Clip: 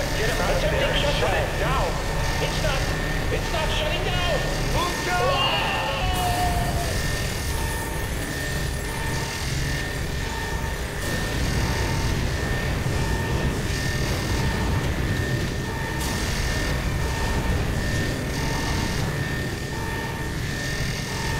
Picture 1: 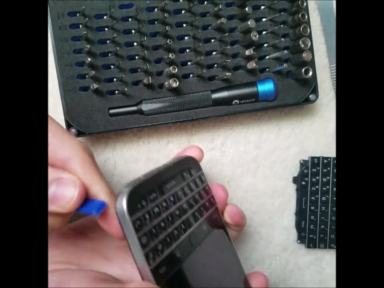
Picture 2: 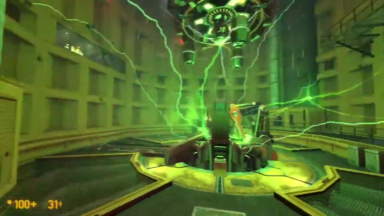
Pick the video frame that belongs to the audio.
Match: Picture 2